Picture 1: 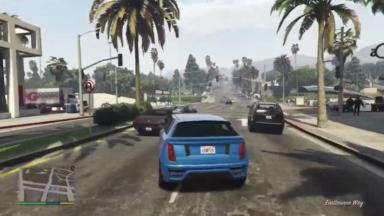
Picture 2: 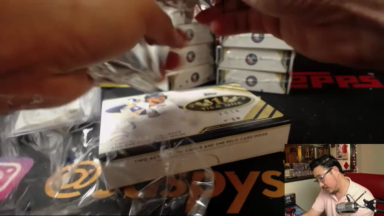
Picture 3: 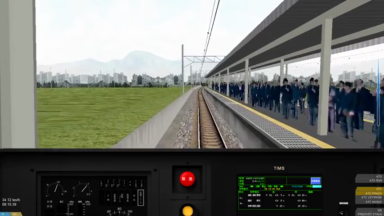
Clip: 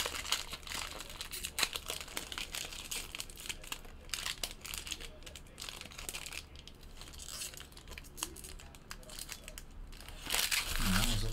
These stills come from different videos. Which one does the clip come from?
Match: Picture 2